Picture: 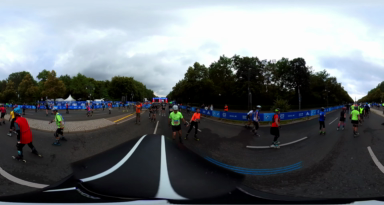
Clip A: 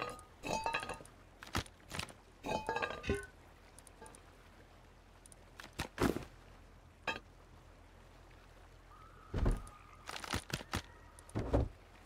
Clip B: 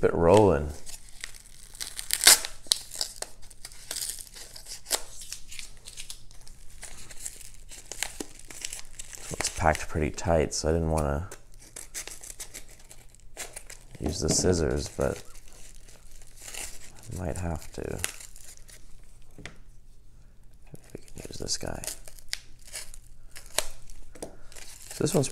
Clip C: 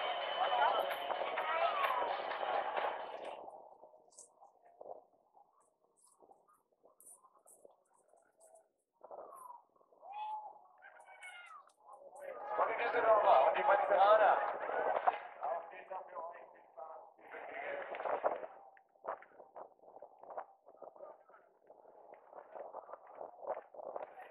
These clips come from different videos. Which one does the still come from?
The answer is C